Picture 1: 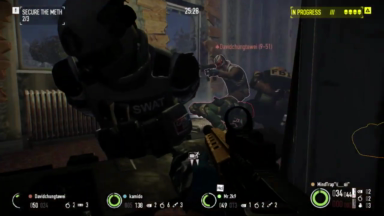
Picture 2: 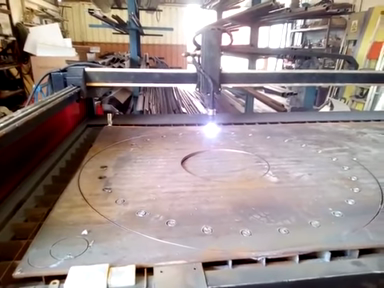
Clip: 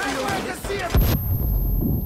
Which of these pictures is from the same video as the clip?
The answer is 1